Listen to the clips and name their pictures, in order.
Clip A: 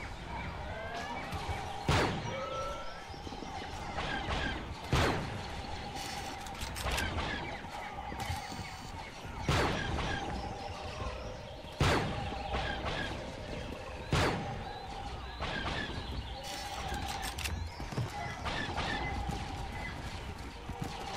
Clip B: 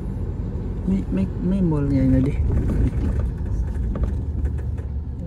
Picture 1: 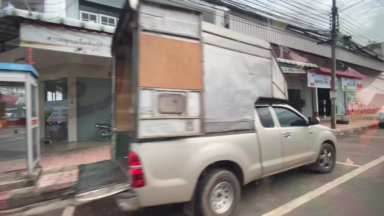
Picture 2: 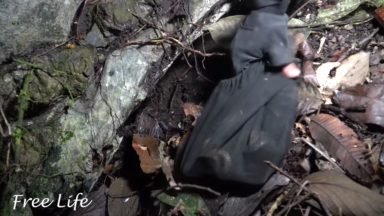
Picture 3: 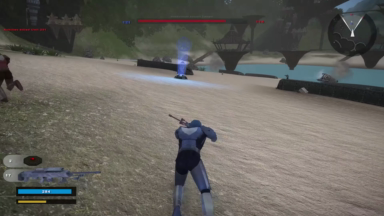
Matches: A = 3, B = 1